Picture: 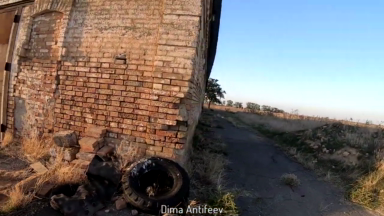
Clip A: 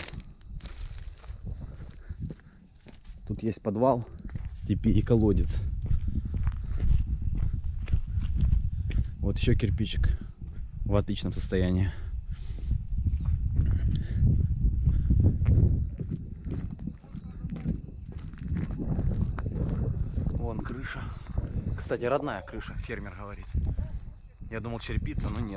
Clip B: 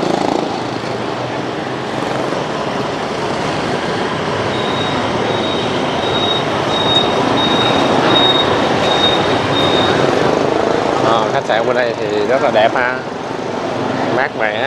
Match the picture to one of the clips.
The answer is A